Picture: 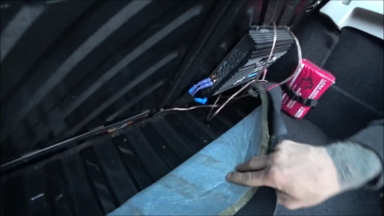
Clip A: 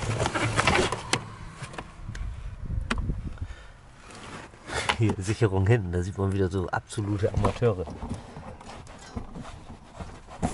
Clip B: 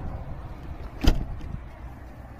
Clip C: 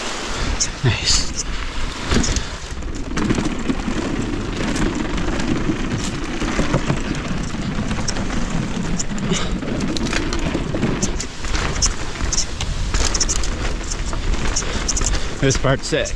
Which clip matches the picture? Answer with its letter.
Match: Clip A